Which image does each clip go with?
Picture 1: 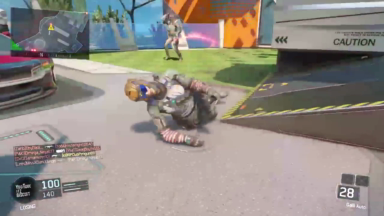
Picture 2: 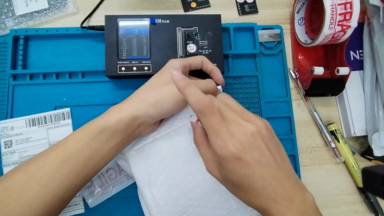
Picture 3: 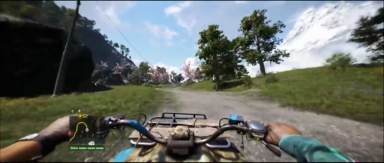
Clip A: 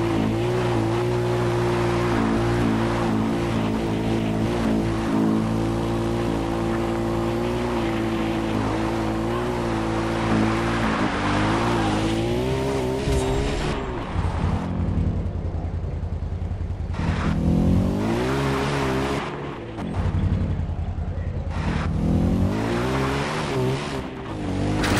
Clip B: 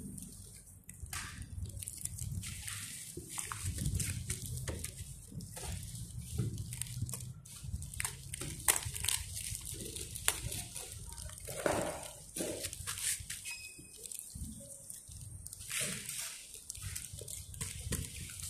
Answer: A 3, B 2